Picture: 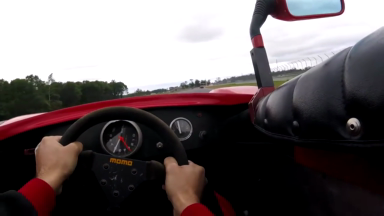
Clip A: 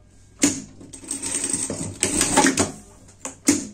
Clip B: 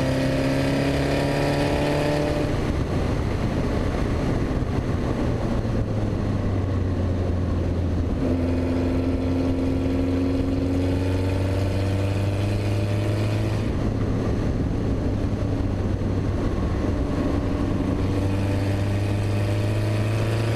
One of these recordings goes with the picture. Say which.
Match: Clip B